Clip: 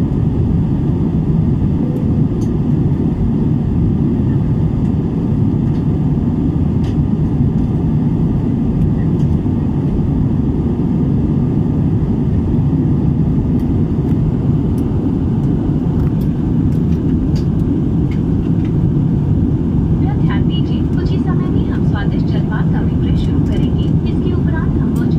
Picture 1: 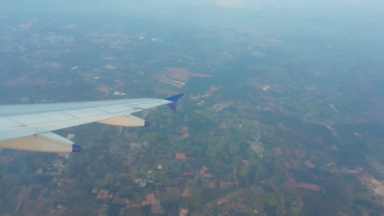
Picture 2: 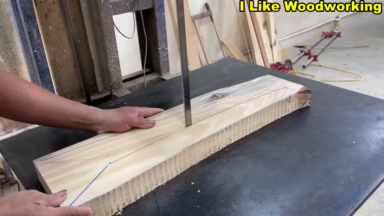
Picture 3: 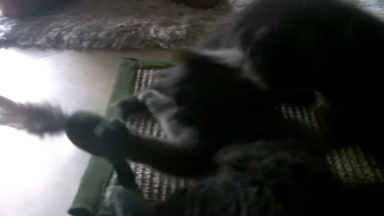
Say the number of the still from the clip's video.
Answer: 1